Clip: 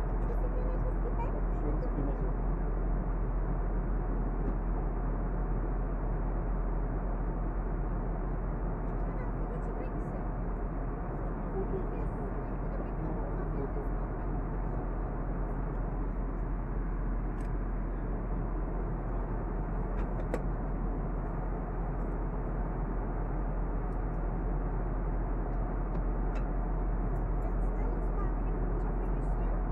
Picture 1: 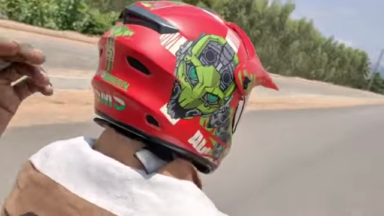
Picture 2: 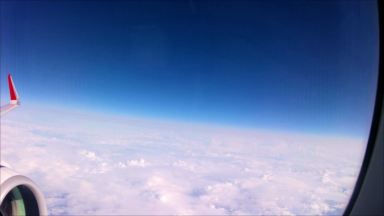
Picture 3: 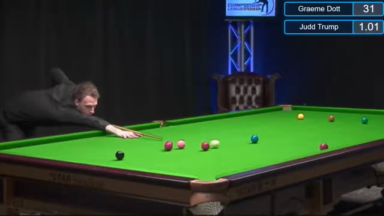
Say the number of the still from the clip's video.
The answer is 2